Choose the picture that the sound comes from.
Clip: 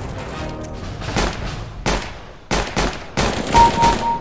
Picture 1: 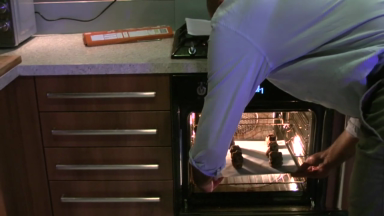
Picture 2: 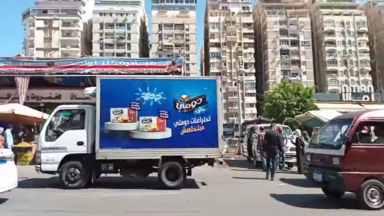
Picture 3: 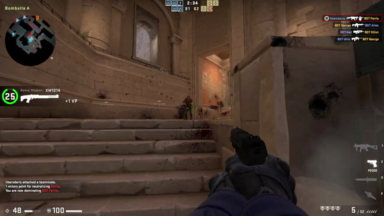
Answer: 3